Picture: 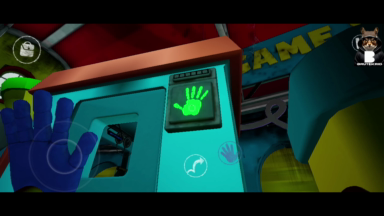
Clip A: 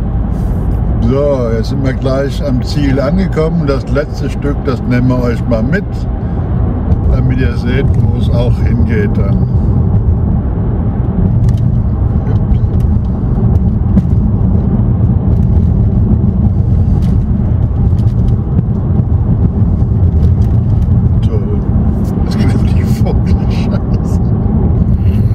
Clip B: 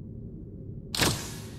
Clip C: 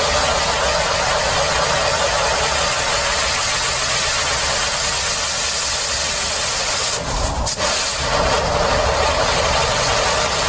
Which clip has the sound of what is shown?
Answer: B